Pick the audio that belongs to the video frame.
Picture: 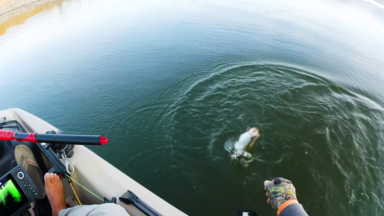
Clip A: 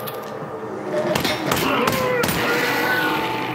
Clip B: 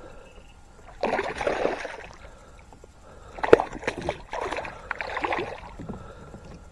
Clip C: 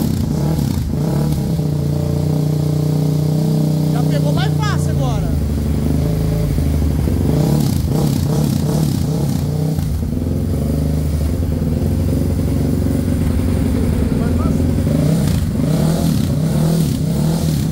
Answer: B